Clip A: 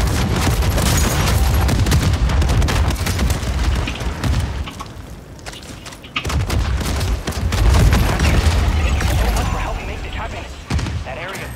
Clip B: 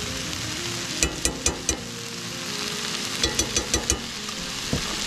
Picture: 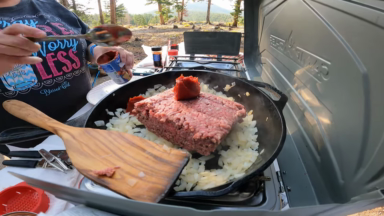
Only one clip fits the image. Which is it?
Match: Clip B